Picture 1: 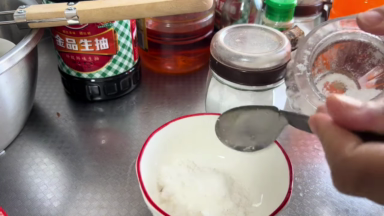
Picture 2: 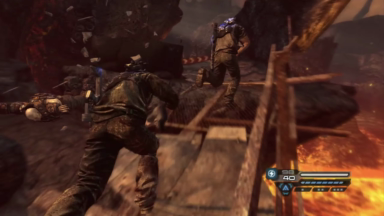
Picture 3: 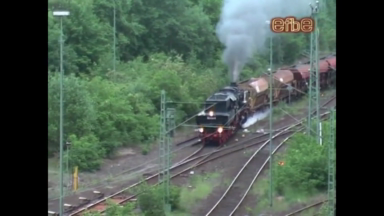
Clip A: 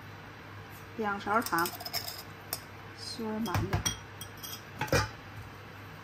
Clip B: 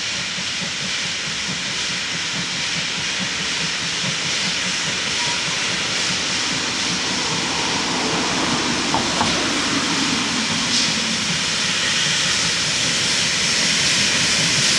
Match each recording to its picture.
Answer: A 1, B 3